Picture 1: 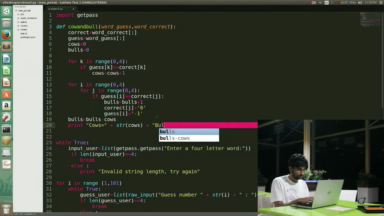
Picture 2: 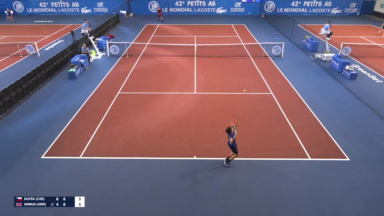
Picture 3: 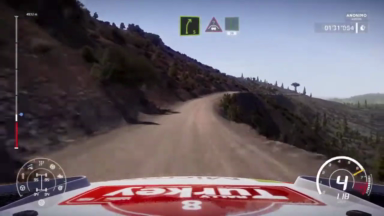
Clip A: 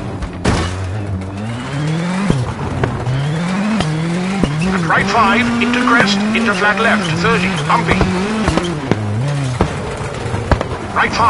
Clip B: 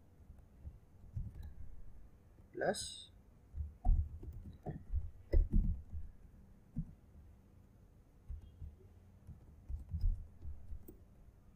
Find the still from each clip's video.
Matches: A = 3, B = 1